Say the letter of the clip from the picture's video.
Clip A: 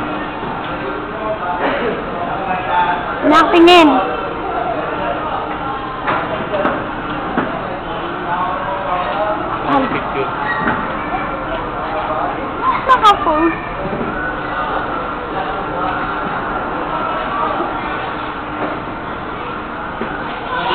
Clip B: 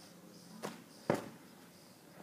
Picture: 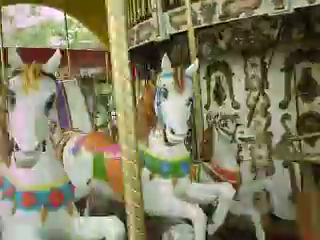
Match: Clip A